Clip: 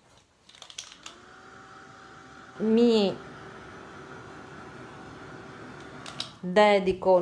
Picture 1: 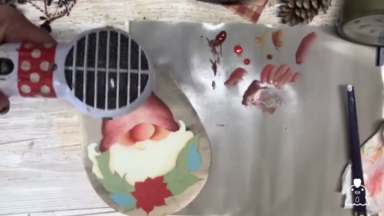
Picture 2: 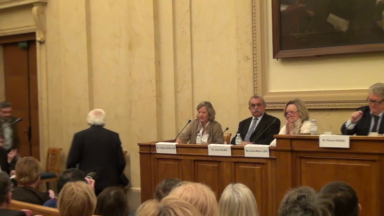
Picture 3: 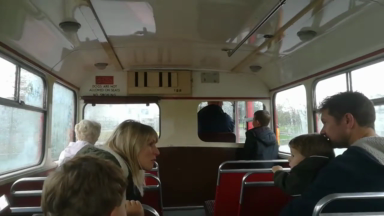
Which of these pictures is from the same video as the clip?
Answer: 1